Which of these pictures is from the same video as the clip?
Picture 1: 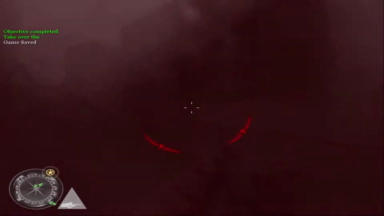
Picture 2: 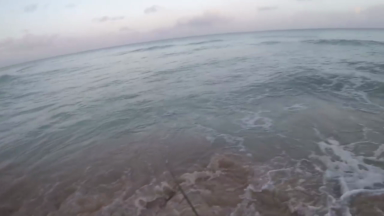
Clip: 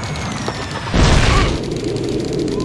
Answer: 1